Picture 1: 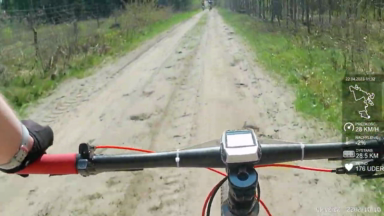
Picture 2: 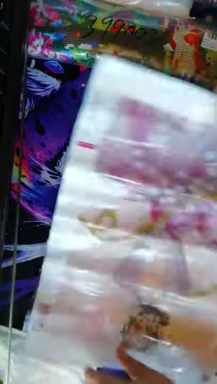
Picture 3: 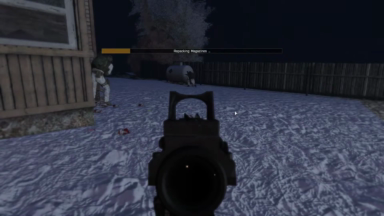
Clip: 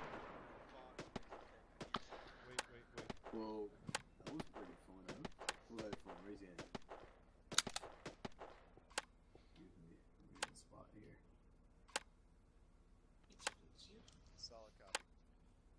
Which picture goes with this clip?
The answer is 3